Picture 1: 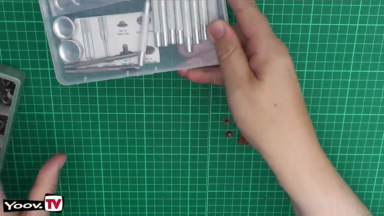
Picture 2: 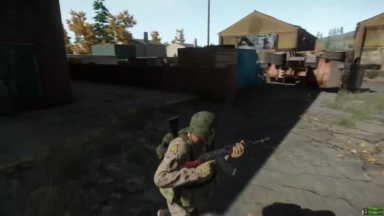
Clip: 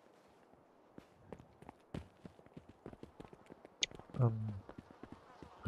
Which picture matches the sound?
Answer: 2